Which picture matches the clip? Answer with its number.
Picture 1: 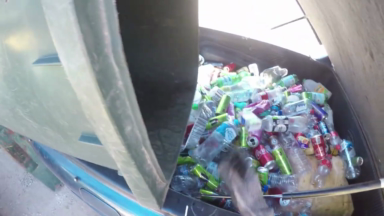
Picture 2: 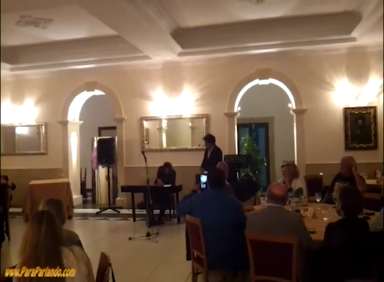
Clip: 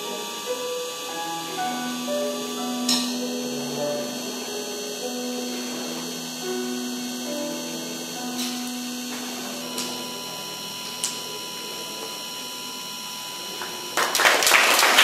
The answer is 2